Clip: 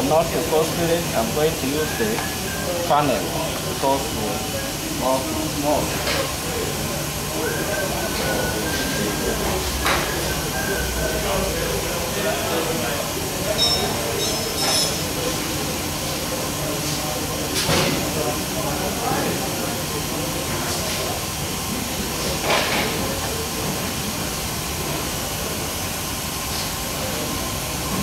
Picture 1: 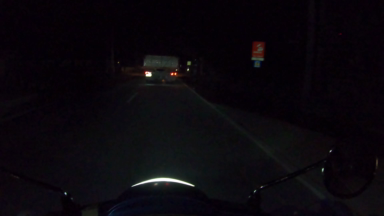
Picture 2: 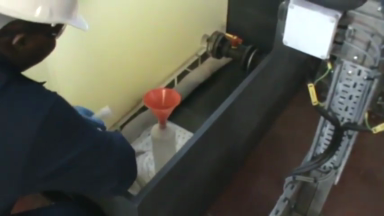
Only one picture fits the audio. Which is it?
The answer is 2